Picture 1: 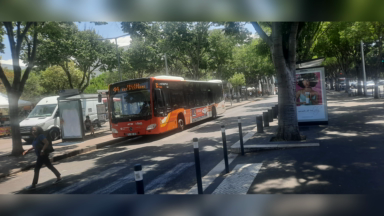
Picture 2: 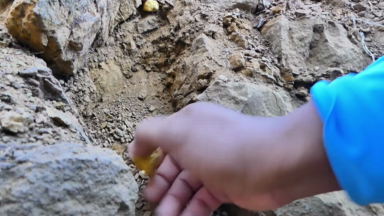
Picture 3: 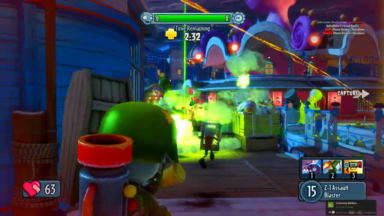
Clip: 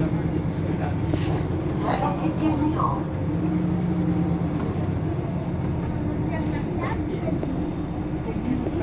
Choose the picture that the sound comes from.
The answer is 1